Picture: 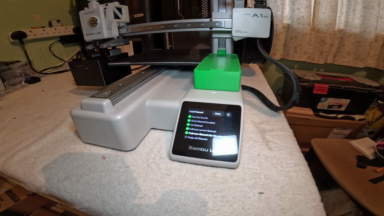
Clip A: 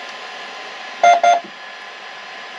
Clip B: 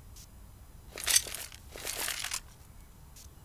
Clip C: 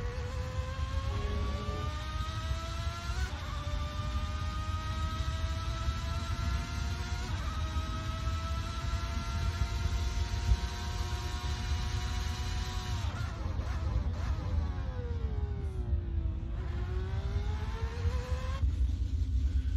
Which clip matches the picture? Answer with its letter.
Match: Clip A